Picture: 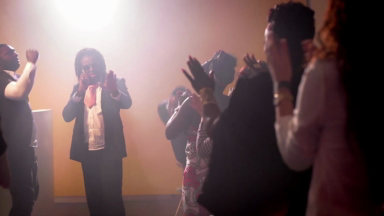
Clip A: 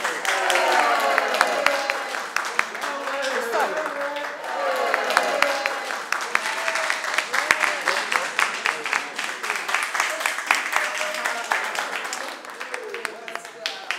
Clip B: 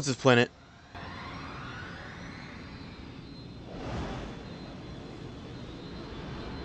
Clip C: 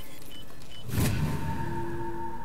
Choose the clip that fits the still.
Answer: A